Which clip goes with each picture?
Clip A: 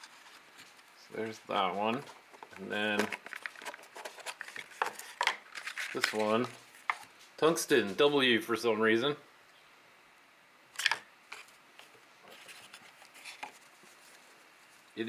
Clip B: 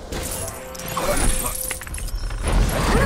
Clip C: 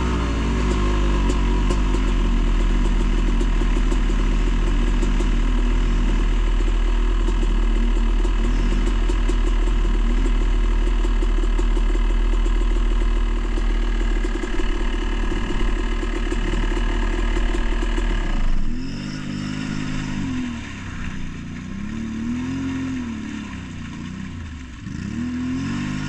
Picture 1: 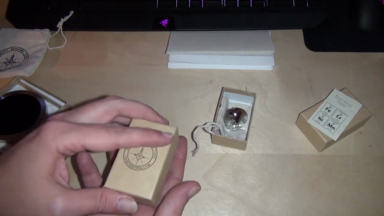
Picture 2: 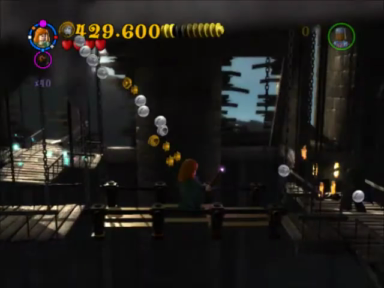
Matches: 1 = A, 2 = B